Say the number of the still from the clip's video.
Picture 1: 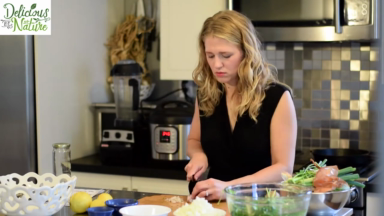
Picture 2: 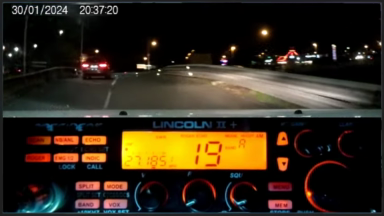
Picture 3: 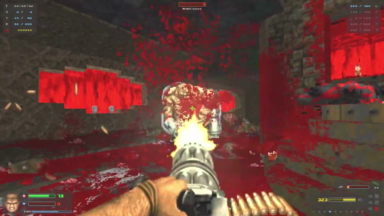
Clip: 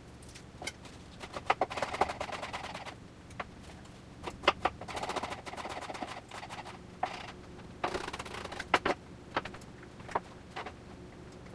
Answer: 1